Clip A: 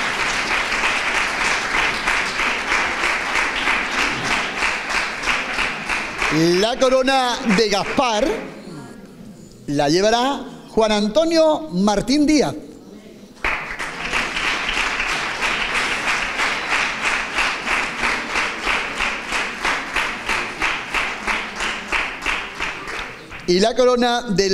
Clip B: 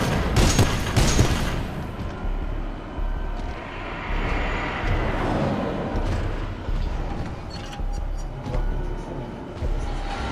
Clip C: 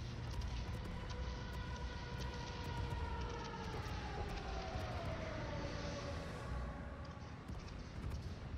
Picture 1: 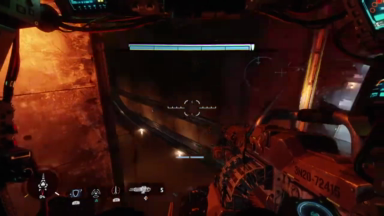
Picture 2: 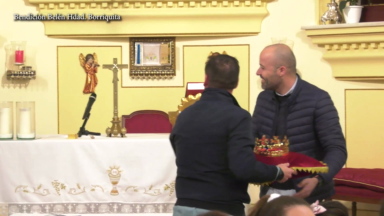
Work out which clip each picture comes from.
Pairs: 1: B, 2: A